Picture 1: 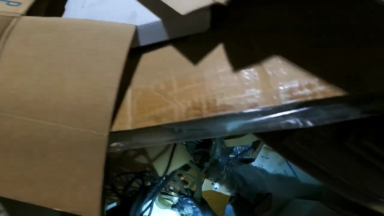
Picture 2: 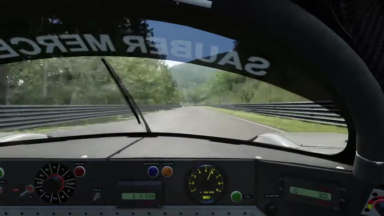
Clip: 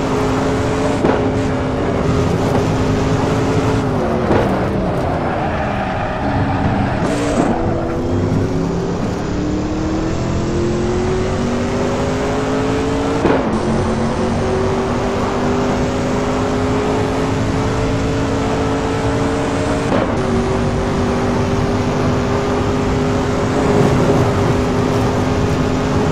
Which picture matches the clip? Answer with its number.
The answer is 2